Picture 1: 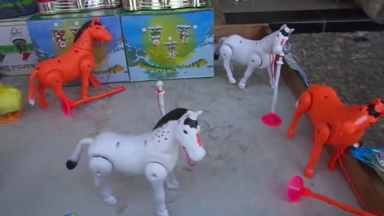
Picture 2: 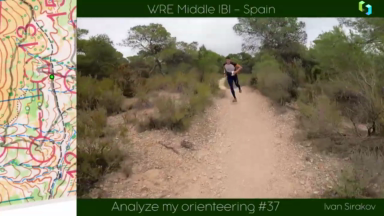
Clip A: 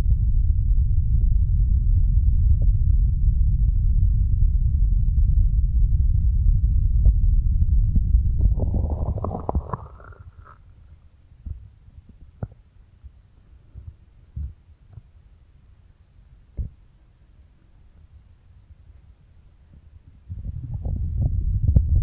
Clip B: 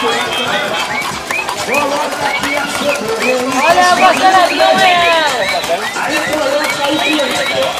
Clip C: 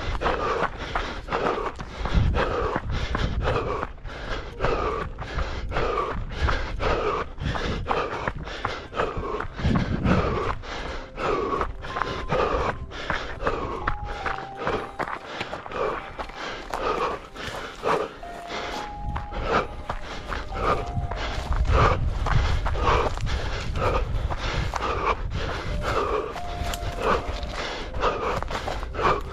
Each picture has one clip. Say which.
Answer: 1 B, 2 C